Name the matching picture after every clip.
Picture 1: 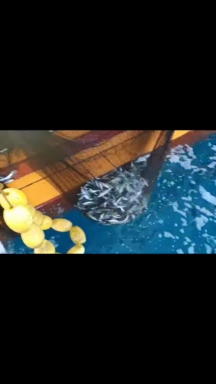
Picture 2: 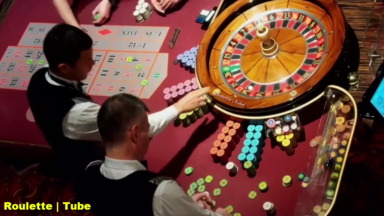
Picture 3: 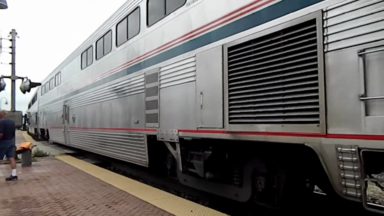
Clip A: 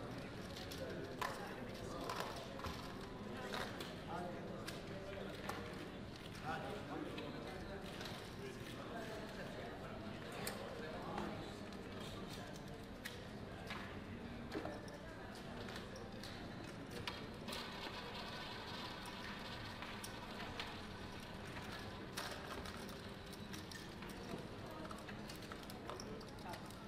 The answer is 2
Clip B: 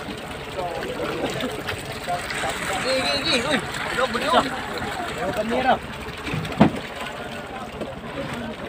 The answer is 1